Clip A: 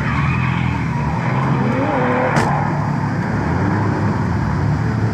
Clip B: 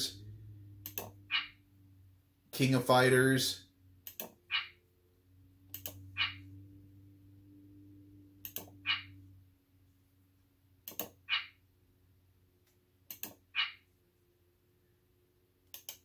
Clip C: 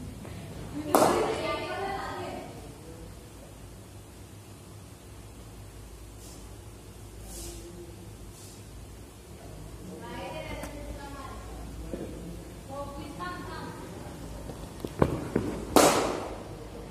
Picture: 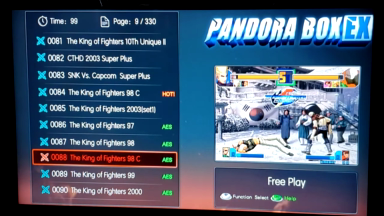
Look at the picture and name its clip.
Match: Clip B